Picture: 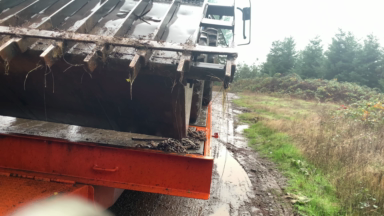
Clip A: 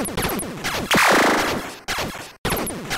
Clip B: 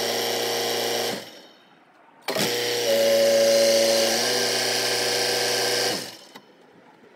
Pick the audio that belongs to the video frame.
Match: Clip B